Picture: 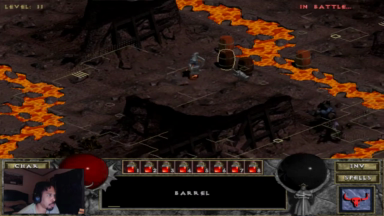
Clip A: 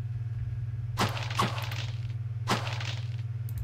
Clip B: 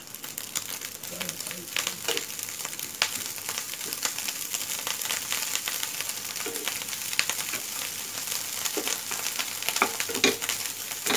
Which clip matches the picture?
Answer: A